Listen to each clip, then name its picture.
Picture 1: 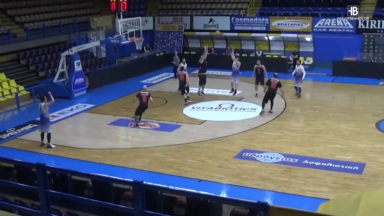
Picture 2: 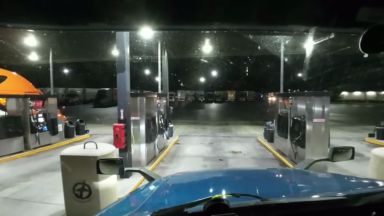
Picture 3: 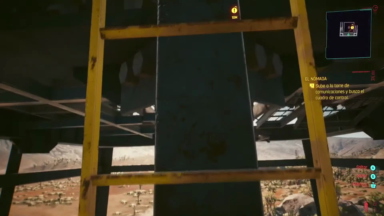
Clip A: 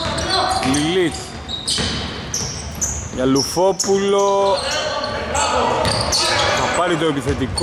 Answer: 1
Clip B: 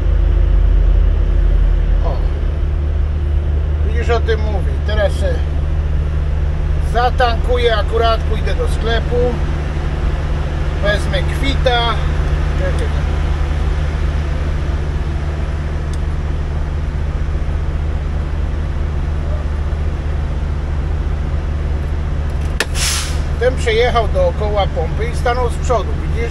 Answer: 2